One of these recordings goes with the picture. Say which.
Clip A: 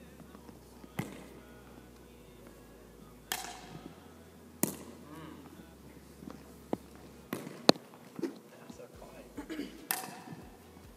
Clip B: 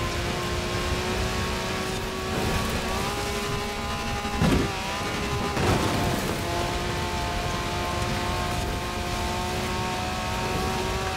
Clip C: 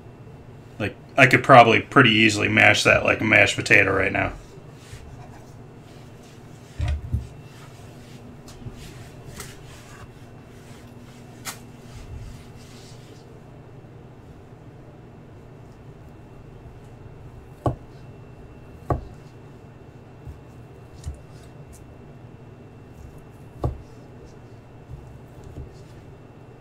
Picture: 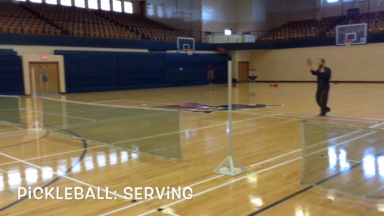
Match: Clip A